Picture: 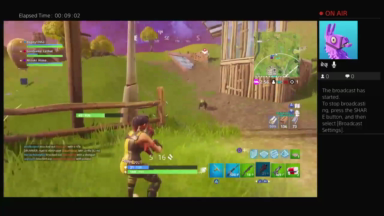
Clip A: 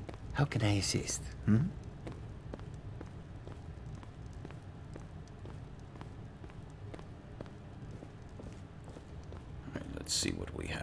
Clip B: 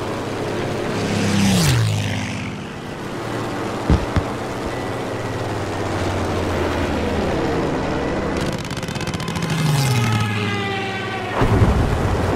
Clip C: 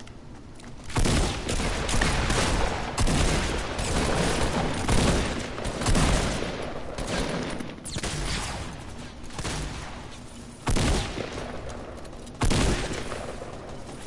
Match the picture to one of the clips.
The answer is C